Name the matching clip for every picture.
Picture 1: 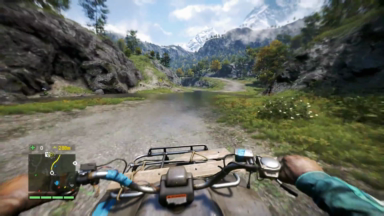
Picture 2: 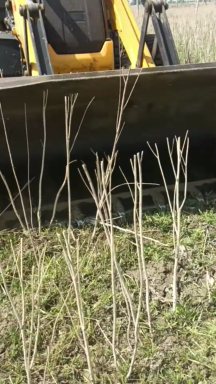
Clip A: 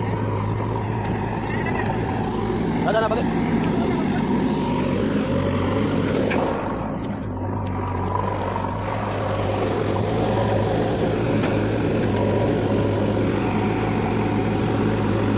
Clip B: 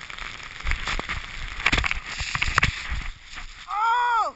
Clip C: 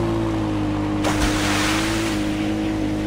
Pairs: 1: C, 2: A